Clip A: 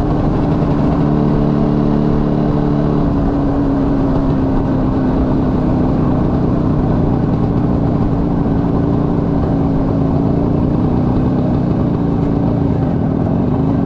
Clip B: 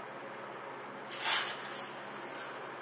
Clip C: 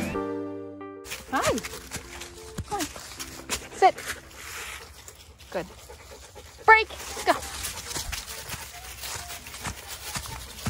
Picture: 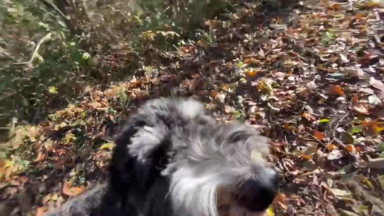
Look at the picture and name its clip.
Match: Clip C